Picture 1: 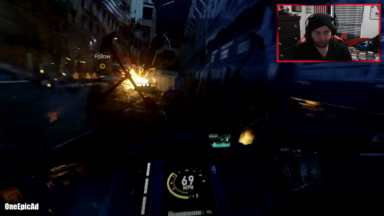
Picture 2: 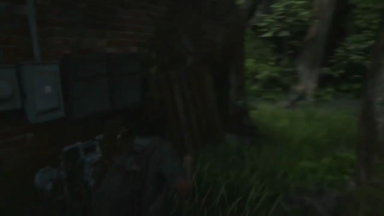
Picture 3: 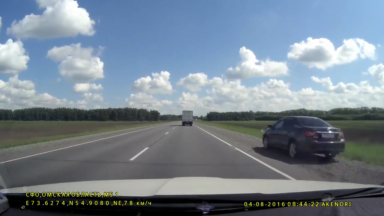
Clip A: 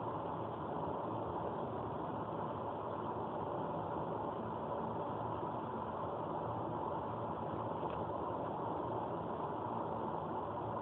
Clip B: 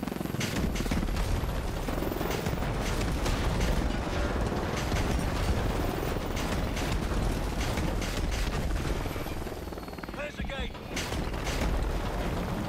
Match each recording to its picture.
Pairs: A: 3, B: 1